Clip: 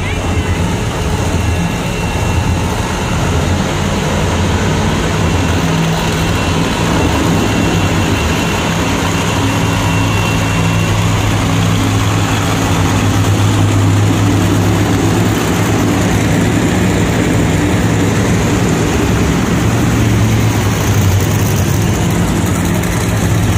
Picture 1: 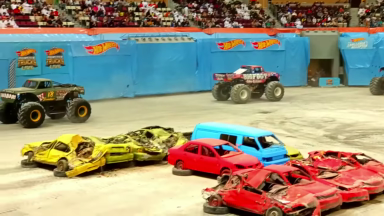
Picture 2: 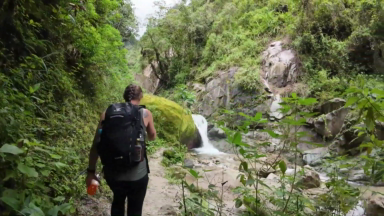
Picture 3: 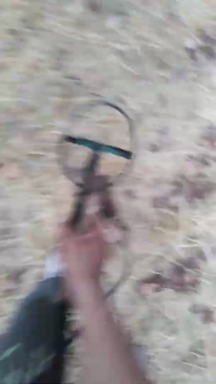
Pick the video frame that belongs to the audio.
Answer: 1